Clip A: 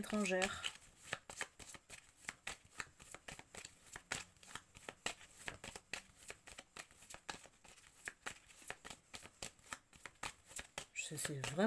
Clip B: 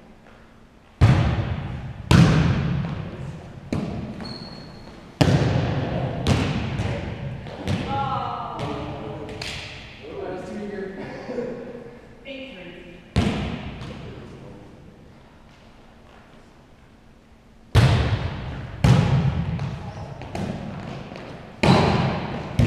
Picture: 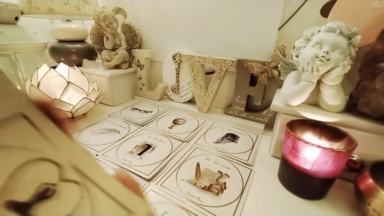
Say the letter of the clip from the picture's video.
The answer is A